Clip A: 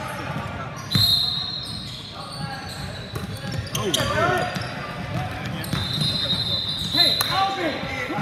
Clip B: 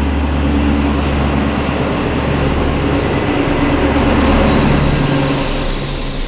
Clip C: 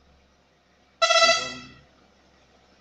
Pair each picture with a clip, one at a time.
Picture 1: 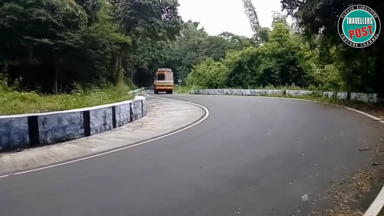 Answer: C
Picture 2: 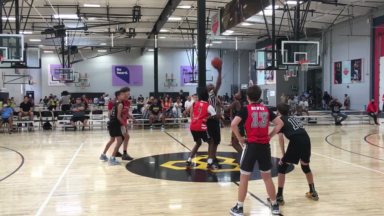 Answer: A